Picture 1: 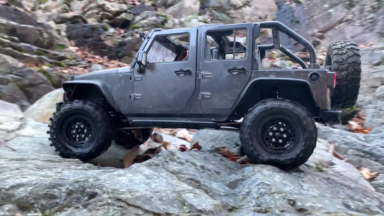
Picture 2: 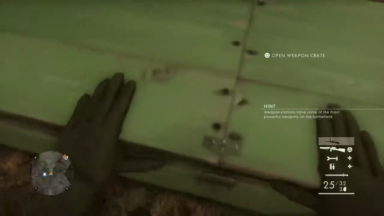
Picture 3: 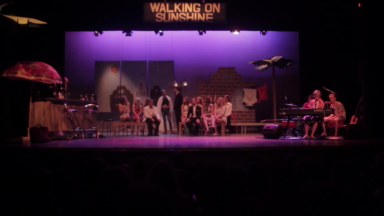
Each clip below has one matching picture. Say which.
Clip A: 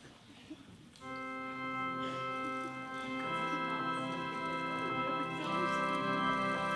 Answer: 3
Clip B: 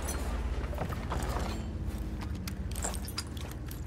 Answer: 2